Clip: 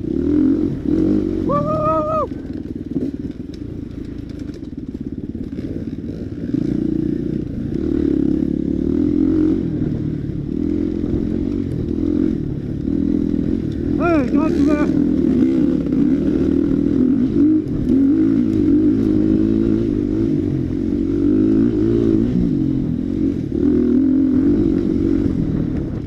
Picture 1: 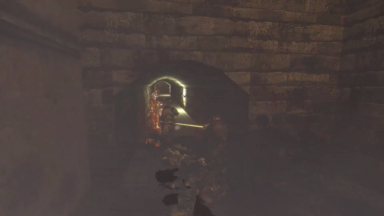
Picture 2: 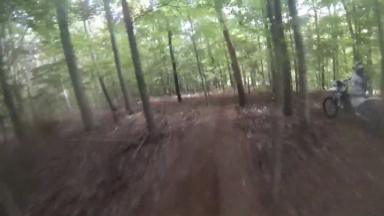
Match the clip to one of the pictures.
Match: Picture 2